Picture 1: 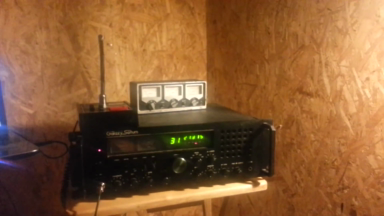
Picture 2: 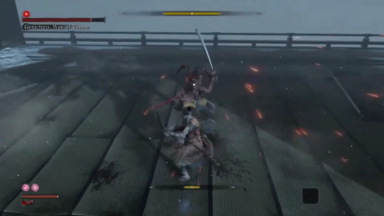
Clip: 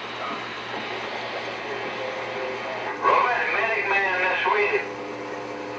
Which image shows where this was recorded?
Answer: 1